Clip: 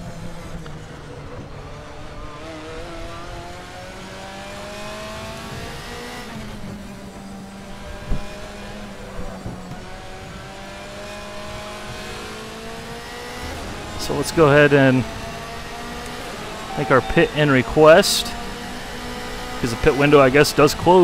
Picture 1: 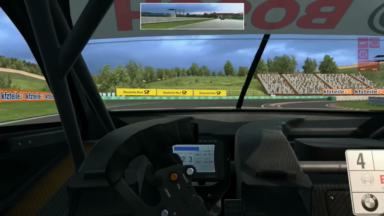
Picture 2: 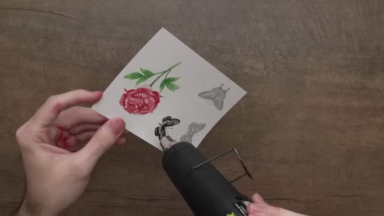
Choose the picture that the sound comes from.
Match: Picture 1